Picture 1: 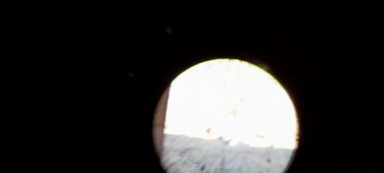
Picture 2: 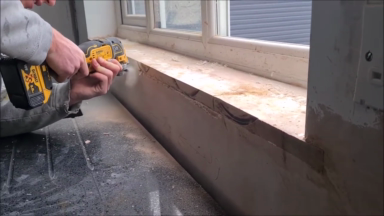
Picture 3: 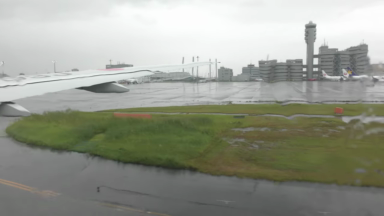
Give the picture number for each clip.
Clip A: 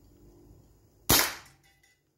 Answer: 1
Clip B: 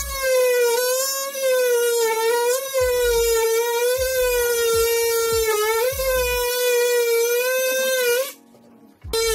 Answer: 2